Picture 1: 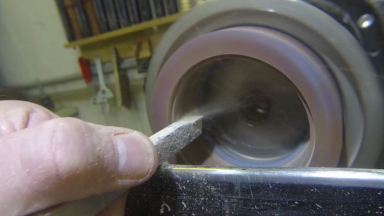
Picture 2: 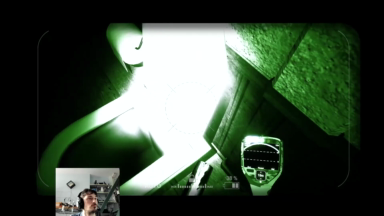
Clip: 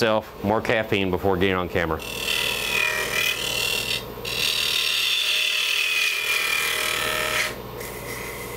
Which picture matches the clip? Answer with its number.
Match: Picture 1